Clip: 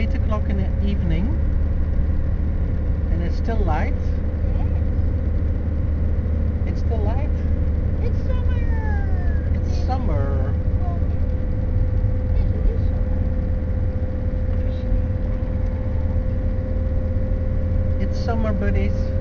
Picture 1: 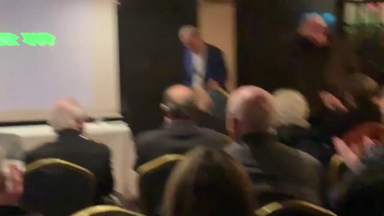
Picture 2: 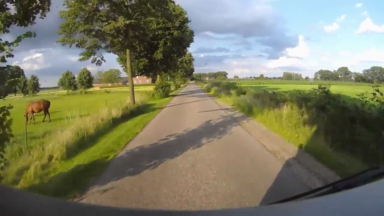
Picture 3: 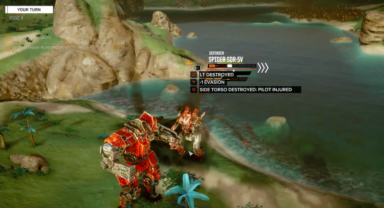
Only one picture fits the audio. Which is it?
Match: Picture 2